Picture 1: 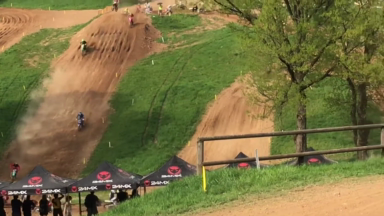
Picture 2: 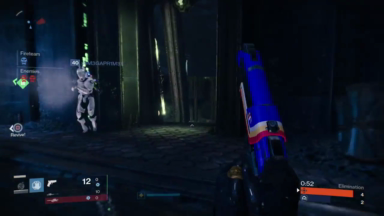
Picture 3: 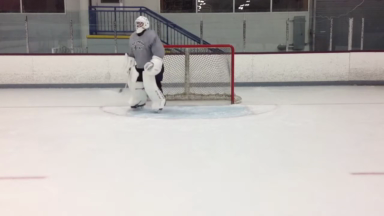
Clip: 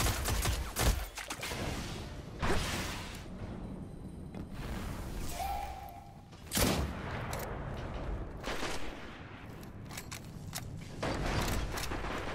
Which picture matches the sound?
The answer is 2